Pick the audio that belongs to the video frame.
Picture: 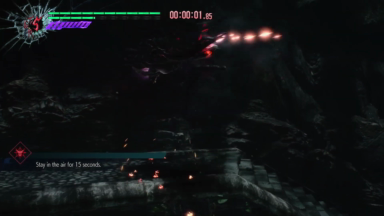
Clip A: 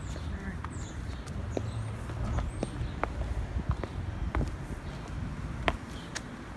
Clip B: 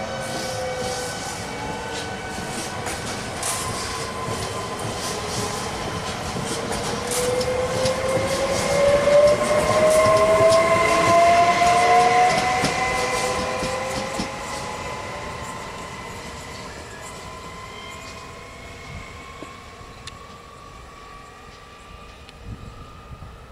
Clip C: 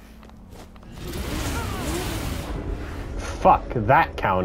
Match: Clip C